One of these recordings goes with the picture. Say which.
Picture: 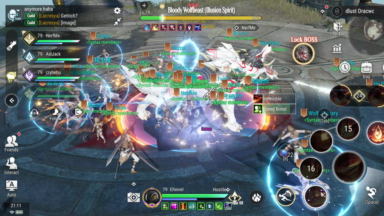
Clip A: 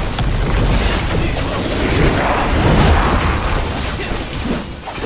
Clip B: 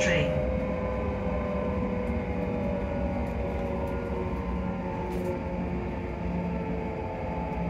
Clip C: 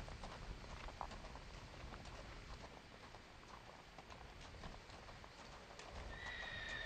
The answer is A